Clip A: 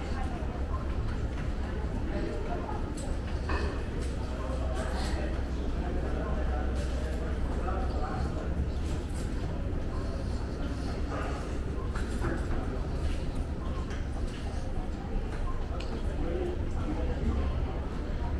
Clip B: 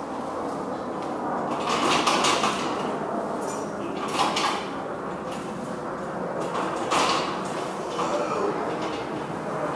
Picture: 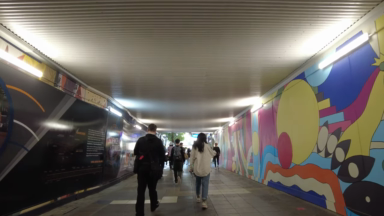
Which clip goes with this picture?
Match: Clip A